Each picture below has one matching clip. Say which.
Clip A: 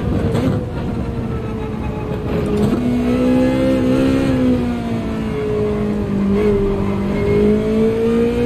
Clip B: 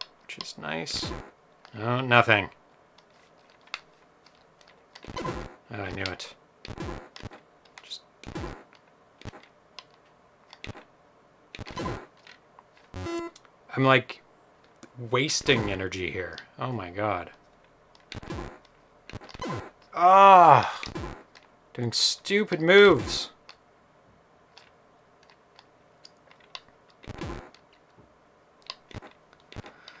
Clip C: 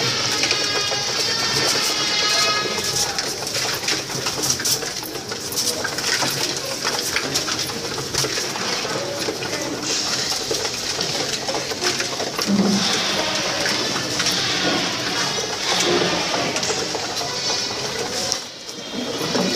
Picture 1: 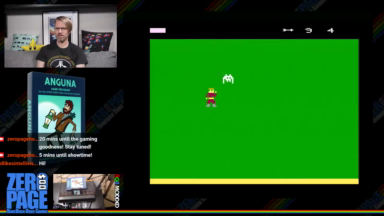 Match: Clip B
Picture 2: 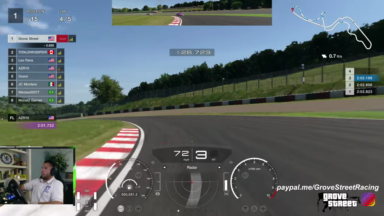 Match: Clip A